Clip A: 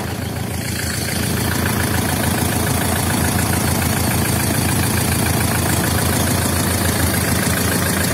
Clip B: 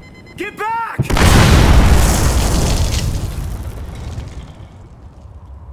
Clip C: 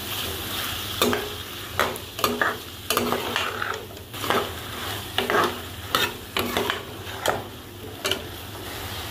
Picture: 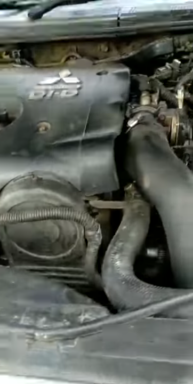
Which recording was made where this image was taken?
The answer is A